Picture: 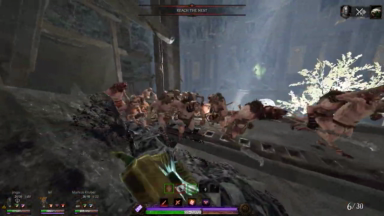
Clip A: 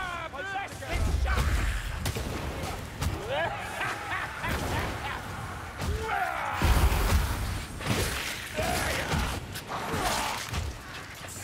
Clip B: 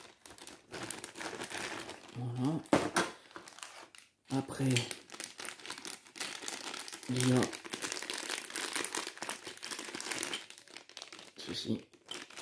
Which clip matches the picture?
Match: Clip A